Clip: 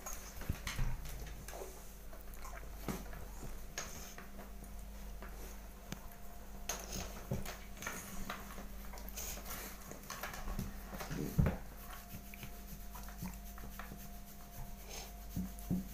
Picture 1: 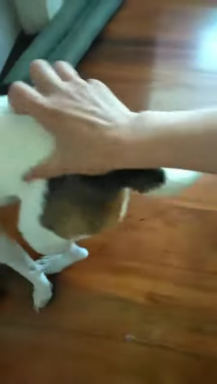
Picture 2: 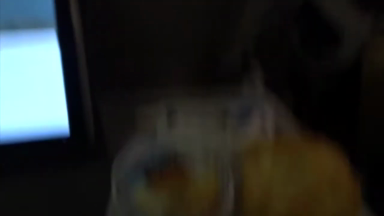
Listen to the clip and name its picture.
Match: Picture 1